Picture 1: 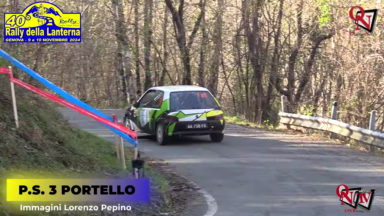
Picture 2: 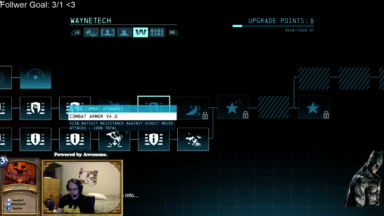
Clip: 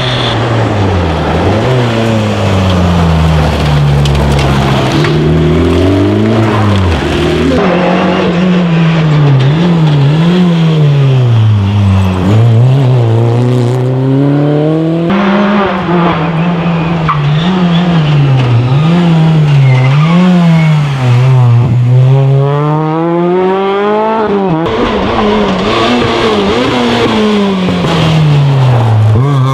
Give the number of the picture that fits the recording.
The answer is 1